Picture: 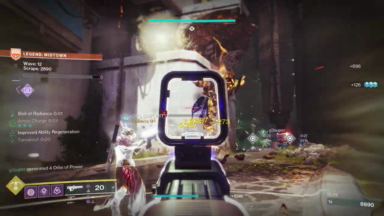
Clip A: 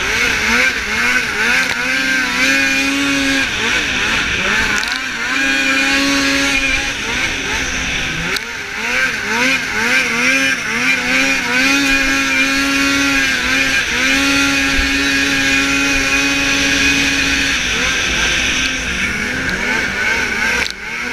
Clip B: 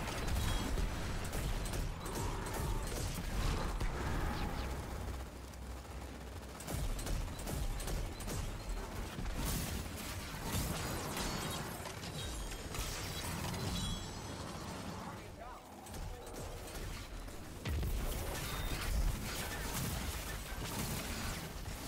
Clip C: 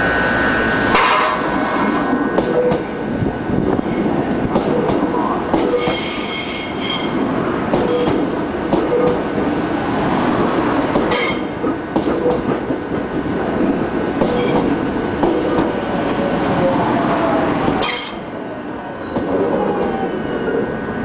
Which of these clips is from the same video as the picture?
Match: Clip B